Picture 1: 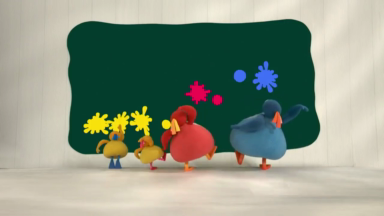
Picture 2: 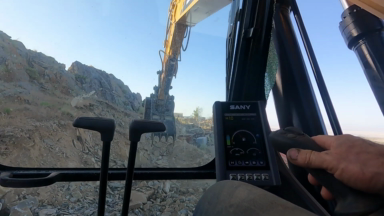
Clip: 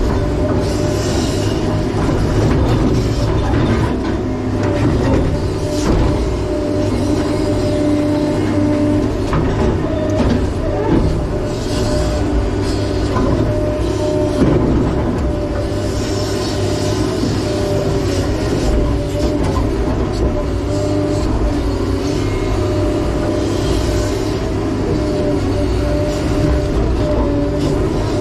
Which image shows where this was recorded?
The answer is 2